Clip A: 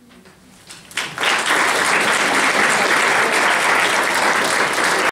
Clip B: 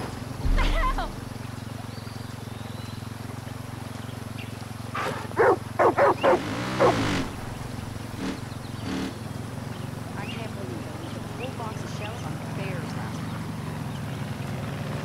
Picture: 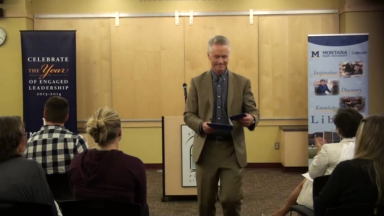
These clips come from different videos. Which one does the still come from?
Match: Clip A